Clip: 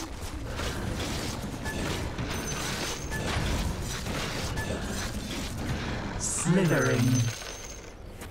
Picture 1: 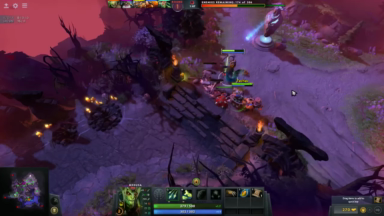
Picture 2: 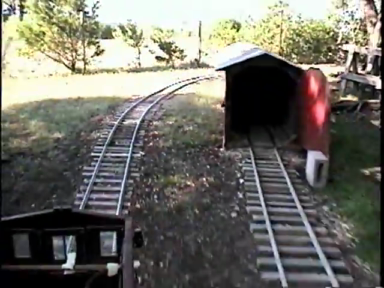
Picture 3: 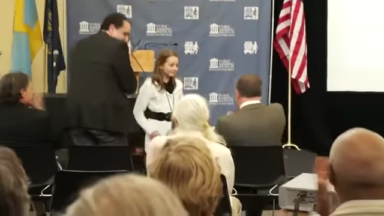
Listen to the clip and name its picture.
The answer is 1